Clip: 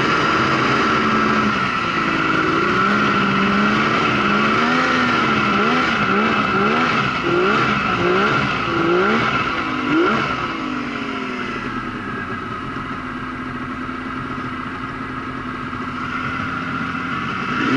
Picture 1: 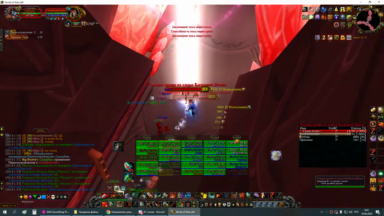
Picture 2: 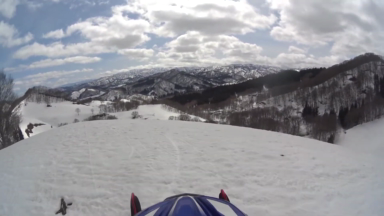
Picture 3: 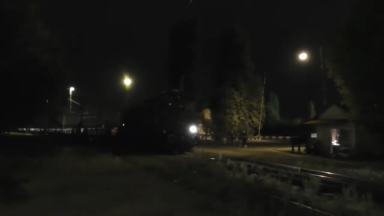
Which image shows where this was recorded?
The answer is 2